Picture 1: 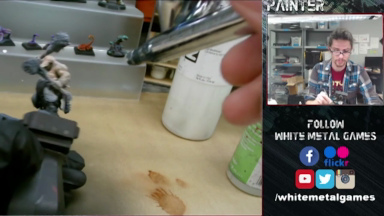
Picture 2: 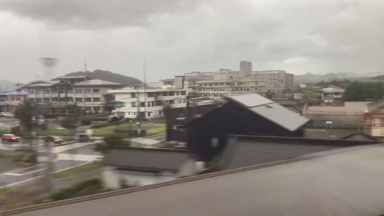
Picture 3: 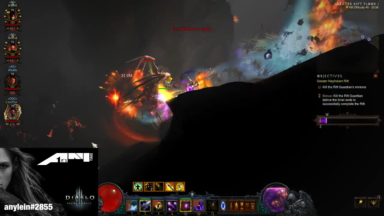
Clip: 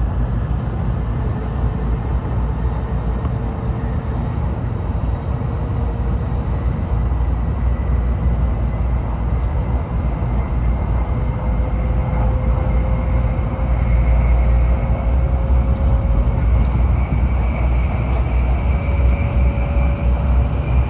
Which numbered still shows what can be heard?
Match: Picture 2